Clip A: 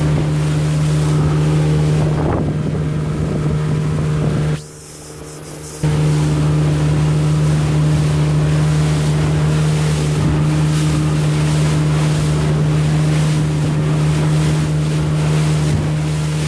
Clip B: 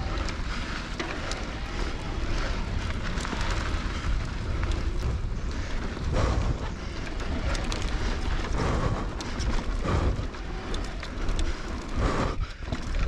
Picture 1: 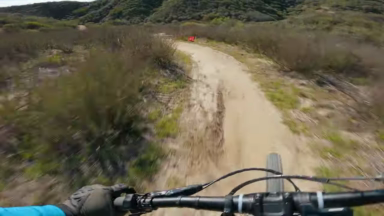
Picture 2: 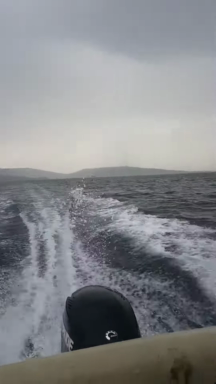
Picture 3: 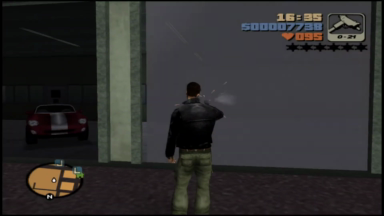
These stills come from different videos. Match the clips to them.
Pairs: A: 2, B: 1